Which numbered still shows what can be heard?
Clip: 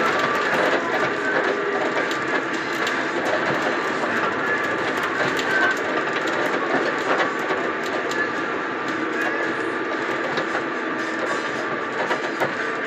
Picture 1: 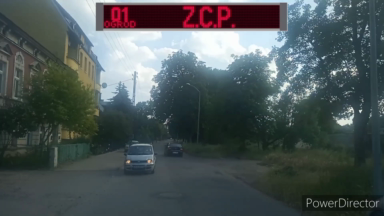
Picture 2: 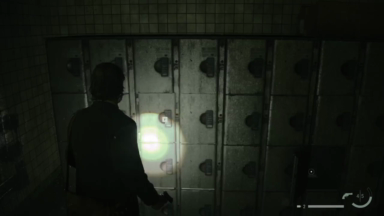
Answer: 1